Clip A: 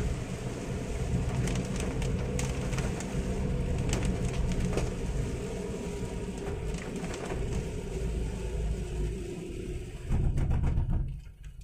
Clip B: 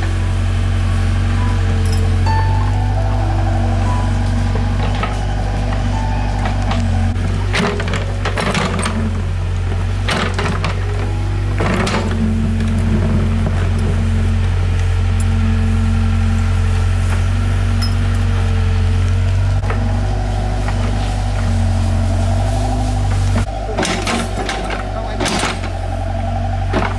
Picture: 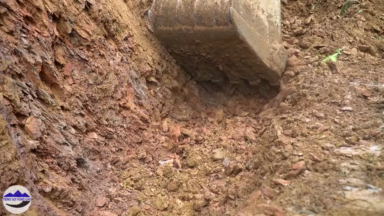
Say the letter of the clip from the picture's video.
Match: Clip B